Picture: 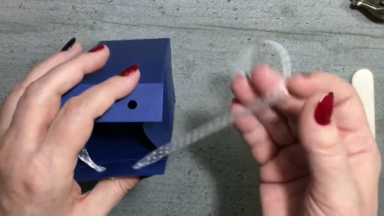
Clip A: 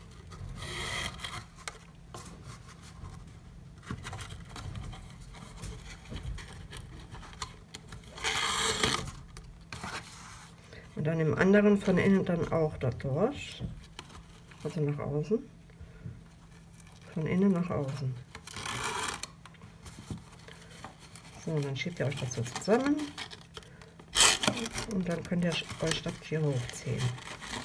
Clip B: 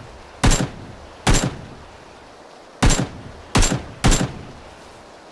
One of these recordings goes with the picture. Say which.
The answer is A